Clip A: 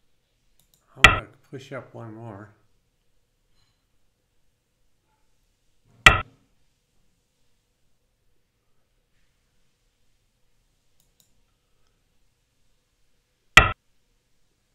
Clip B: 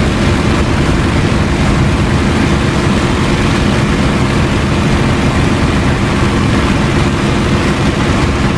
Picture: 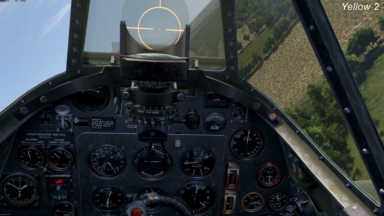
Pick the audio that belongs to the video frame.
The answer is B